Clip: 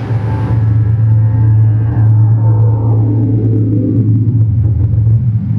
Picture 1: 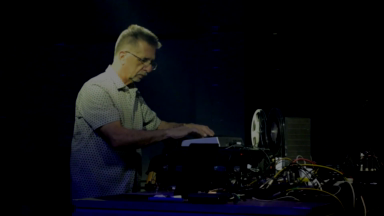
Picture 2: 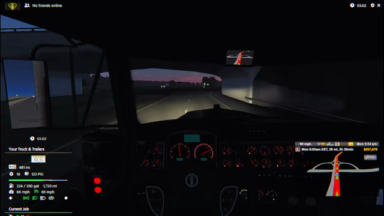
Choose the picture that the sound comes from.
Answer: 1